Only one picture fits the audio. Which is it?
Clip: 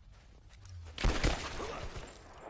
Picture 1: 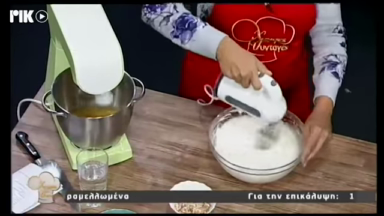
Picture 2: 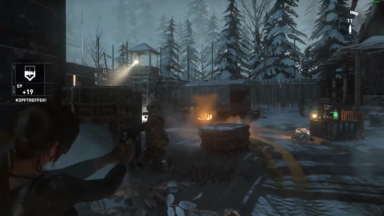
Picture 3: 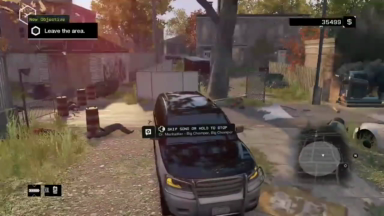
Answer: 2